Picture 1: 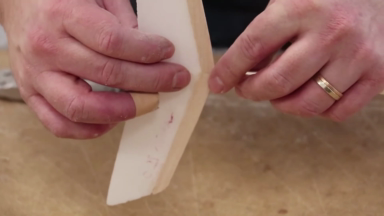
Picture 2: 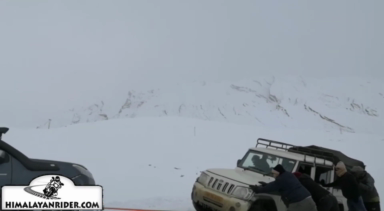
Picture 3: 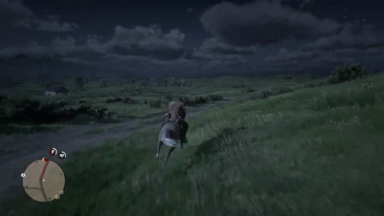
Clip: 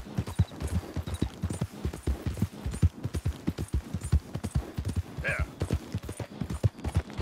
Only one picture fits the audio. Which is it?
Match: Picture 3